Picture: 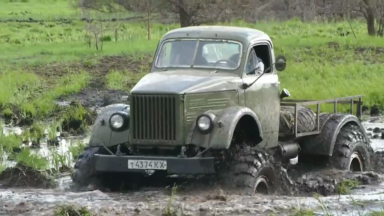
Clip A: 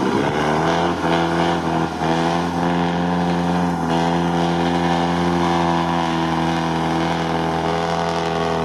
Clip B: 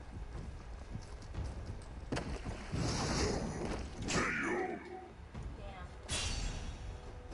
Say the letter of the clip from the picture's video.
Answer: A